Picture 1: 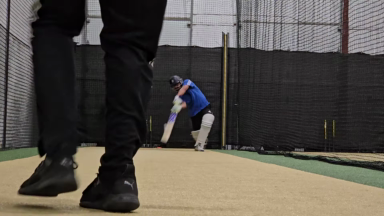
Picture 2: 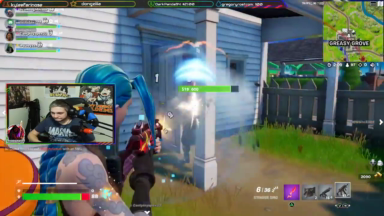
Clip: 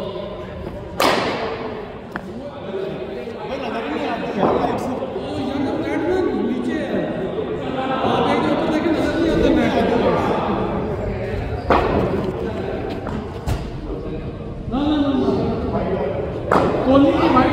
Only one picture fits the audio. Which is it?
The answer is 1